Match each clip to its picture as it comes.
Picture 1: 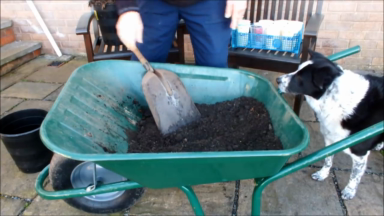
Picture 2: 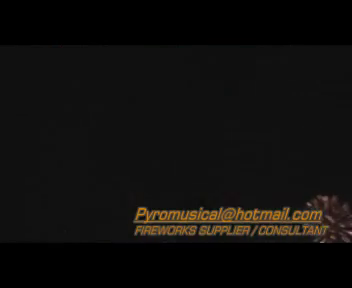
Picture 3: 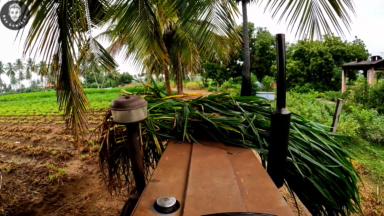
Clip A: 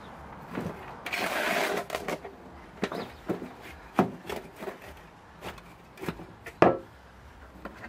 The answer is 1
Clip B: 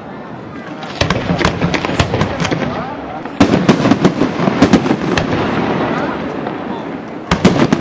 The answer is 2